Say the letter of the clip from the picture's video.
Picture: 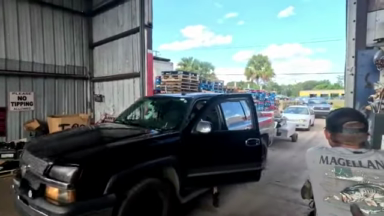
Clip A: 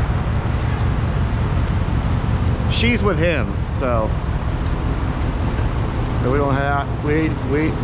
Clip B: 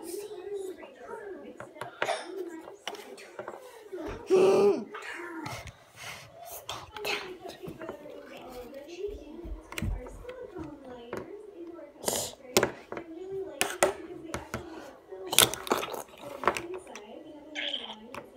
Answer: A